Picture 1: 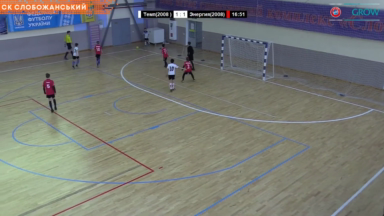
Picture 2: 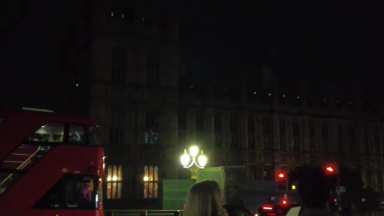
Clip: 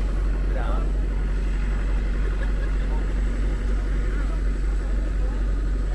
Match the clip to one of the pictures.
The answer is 2